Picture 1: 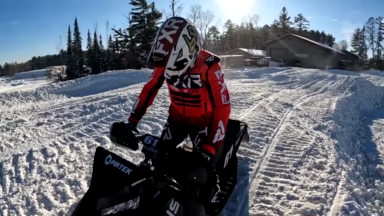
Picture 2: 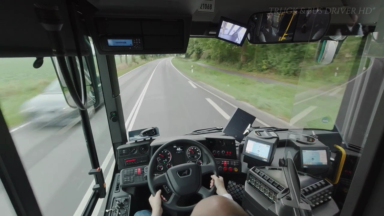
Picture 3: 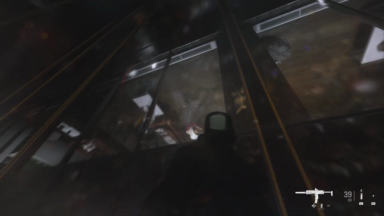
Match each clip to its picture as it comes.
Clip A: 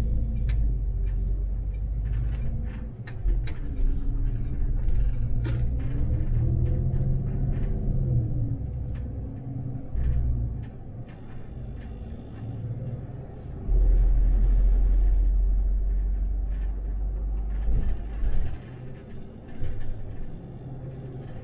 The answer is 2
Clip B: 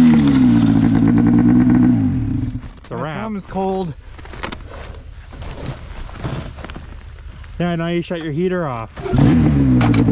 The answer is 1